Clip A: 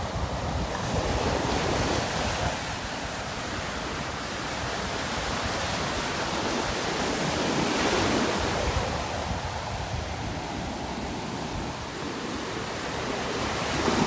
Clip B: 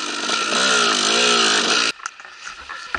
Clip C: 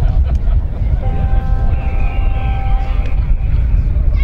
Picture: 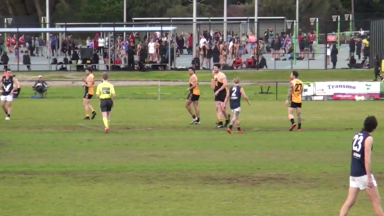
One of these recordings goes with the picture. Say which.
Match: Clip C